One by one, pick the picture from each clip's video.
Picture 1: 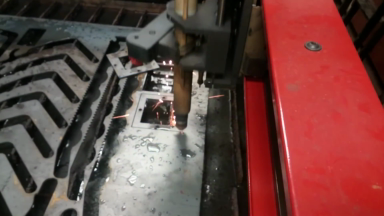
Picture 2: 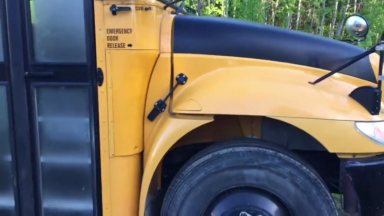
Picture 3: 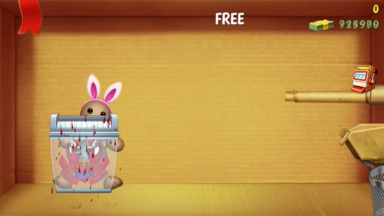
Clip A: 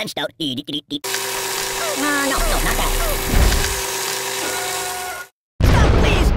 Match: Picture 3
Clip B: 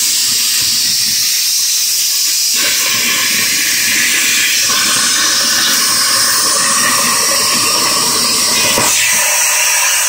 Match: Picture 1